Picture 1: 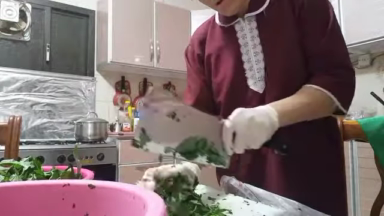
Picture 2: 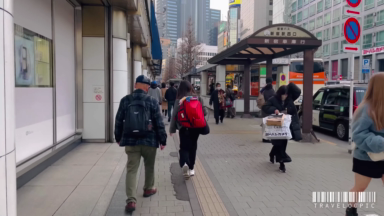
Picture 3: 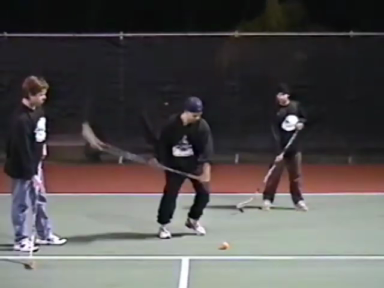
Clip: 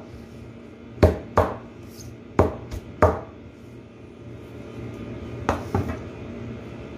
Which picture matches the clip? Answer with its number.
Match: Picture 1